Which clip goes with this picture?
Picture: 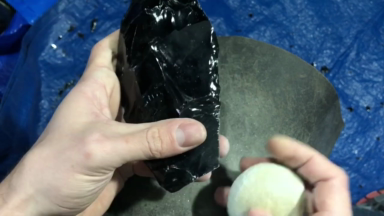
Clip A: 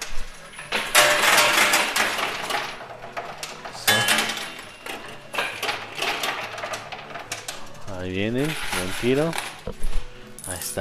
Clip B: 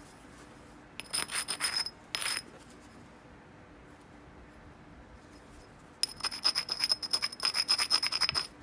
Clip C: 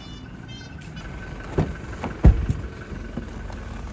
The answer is B